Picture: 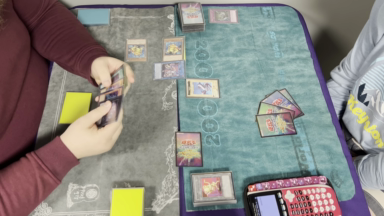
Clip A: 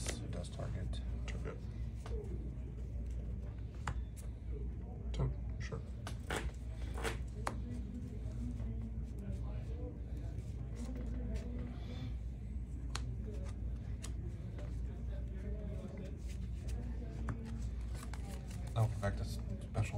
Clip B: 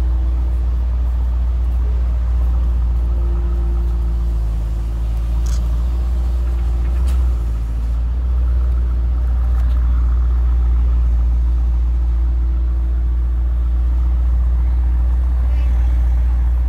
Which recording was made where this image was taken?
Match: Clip A